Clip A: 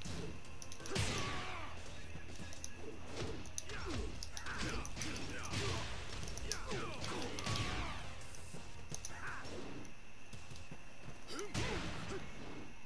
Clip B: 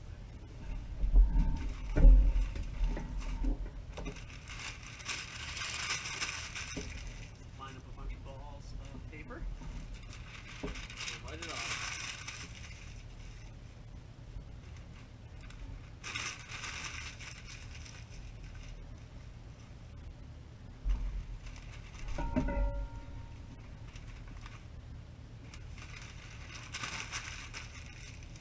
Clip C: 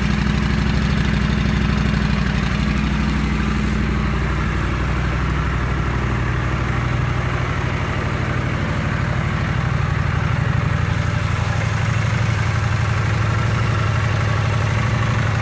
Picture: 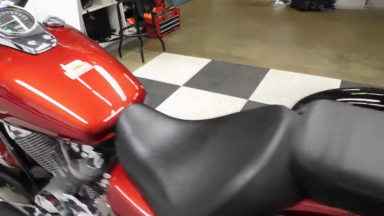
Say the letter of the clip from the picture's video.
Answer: C